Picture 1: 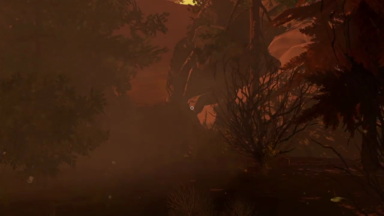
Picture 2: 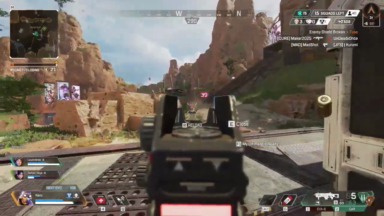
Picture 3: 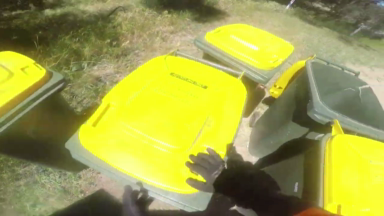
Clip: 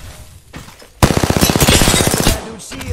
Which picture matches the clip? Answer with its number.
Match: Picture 2